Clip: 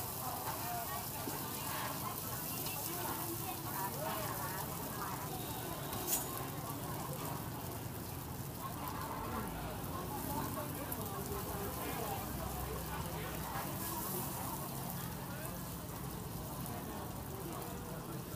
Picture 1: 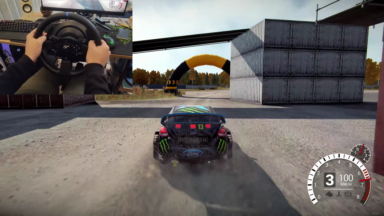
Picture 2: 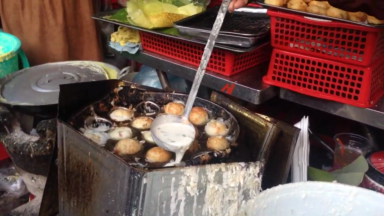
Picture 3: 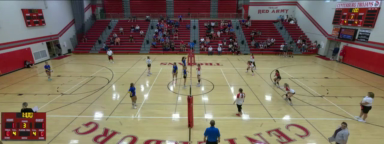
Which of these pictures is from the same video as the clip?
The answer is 2